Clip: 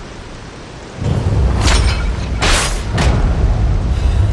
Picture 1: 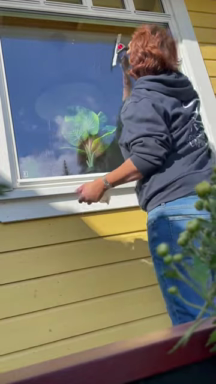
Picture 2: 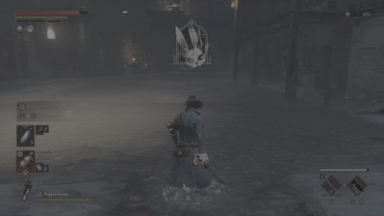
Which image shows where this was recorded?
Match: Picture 2